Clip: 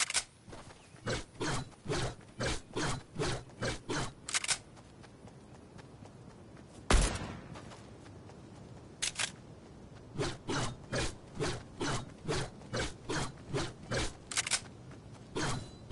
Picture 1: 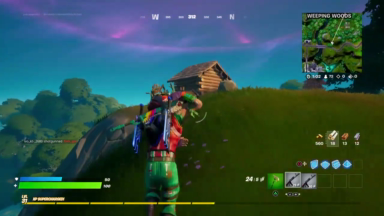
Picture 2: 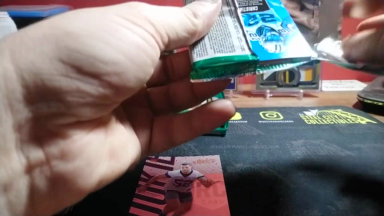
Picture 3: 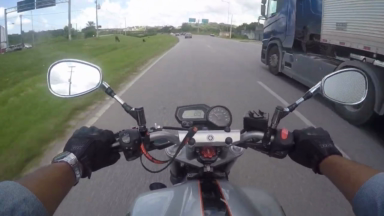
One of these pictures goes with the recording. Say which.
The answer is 1